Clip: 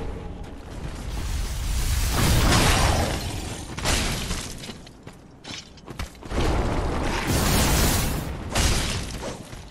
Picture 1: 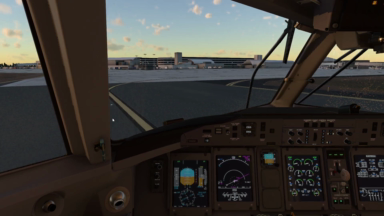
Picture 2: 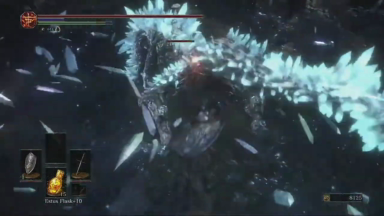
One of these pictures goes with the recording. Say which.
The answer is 2